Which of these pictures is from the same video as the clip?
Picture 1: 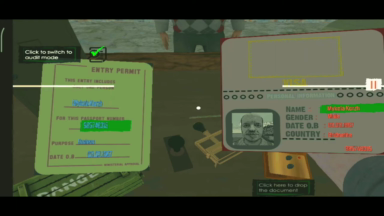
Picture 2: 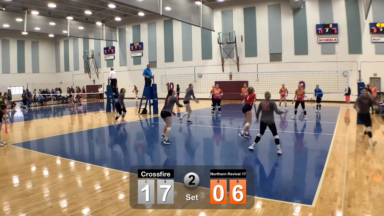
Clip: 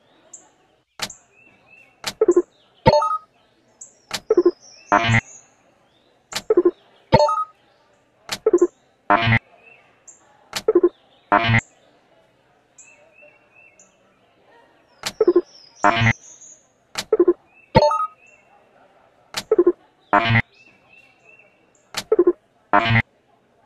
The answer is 1